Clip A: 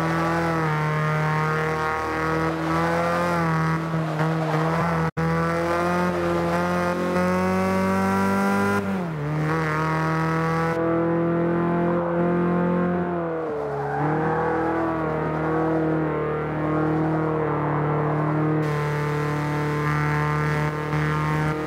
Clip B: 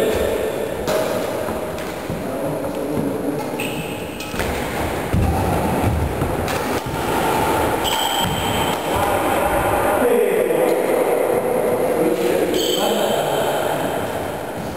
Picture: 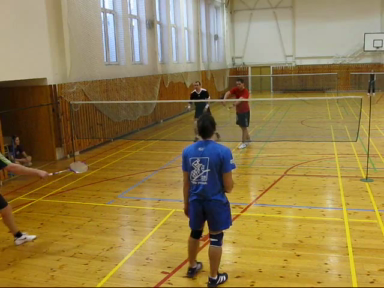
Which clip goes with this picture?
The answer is B